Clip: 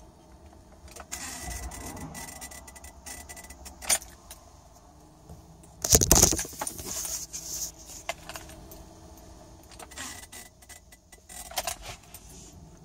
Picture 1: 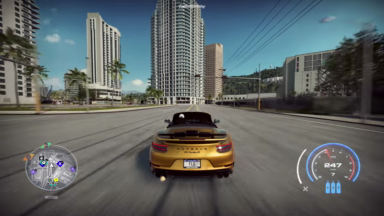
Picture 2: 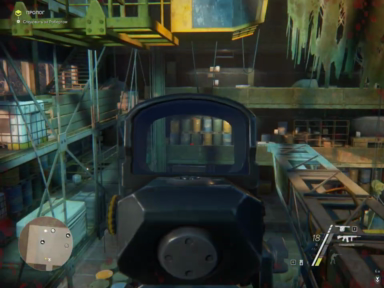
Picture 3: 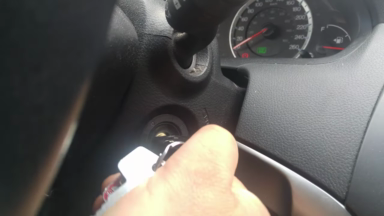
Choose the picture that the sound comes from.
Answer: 3